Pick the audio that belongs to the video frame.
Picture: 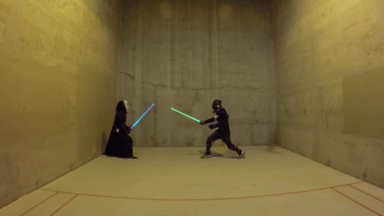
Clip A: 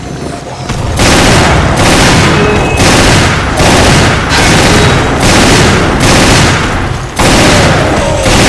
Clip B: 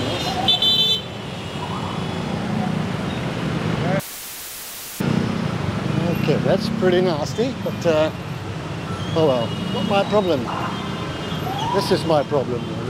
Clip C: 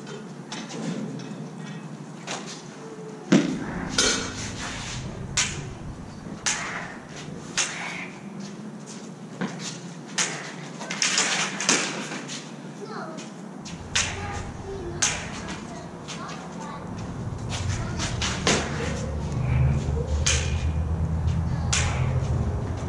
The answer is C